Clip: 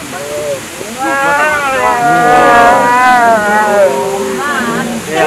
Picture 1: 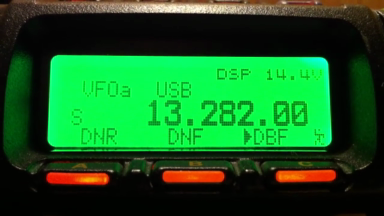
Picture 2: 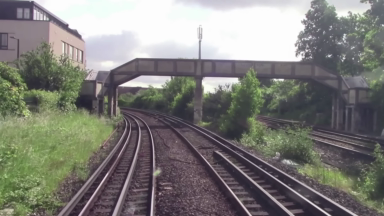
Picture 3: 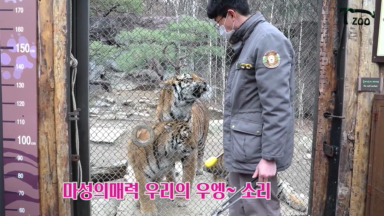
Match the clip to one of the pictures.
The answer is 3